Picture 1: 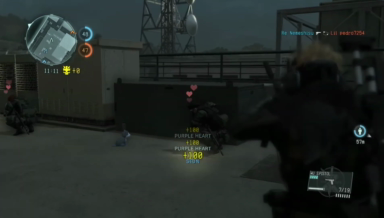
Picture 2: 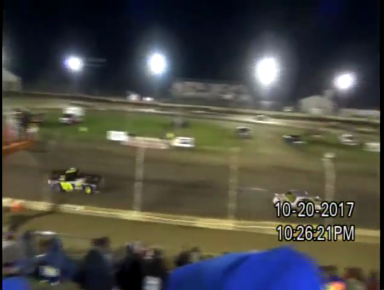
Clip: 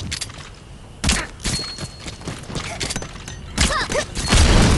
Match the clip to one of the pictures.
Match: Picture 1